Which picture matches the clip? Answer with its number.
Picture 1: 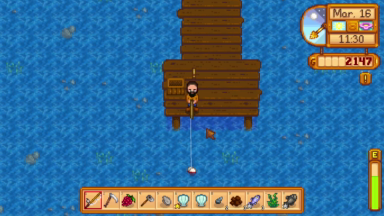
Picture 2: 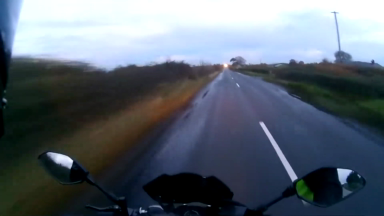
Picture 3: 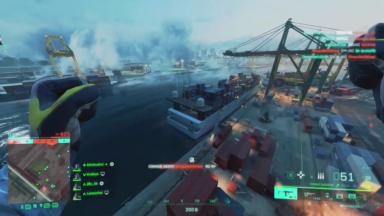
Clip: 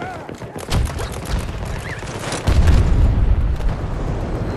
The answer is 3